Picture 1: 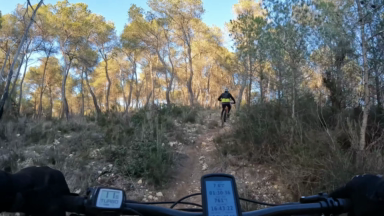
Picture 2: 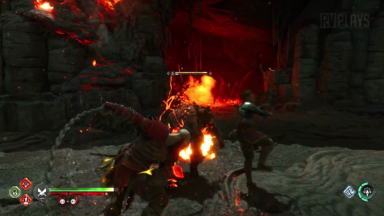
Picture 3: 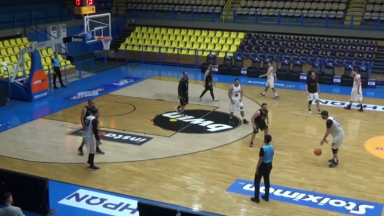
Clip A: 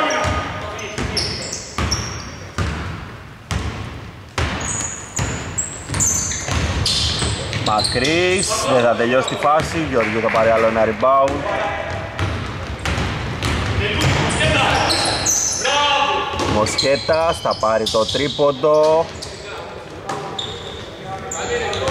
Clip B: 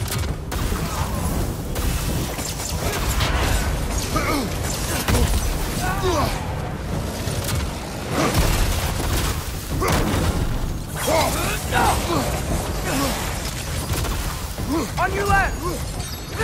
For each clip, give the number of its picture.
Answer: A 3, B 2